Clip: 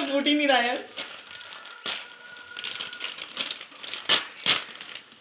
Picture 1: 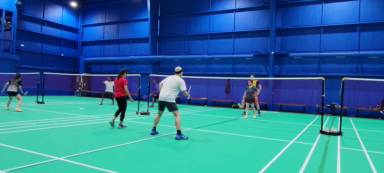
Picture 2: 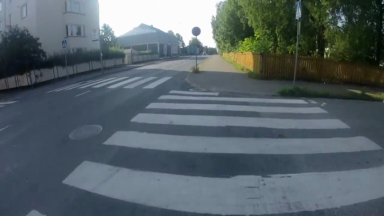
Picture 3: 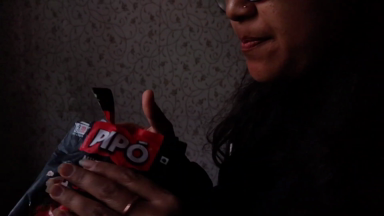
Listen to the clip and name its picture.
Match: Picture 3